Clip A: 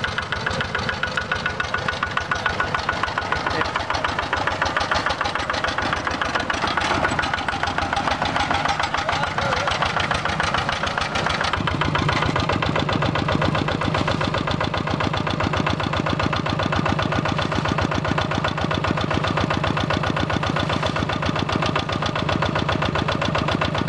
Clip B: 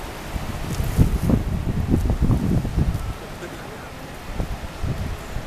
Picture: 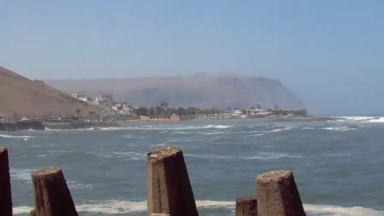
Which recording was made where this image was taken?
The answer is B